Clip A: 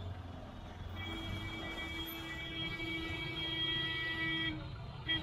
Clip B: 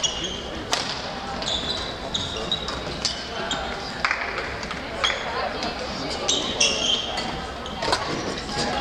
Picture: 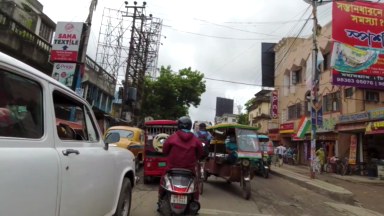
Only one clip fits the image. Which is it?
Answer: A